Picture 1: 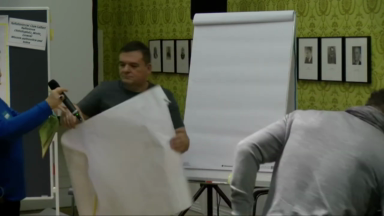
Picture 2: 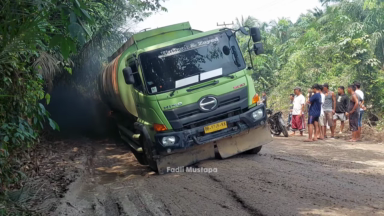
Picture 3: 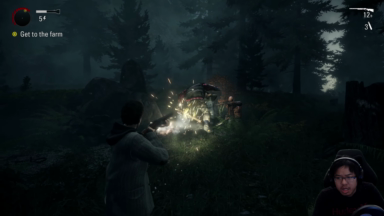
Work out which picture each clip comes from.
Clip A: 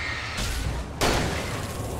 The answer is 3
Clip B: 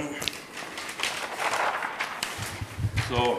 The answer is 1